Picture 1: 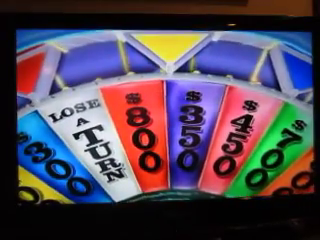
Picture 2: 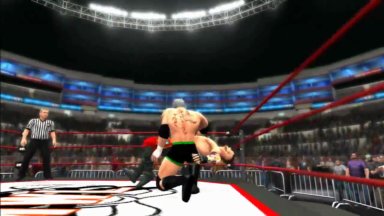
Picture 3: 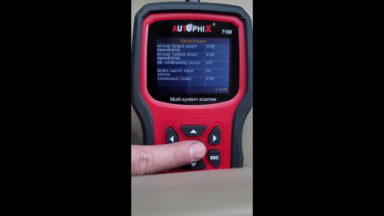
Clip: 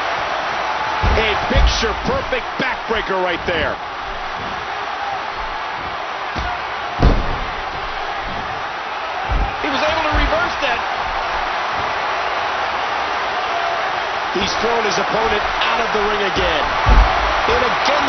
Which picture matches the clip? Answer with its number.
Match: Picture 2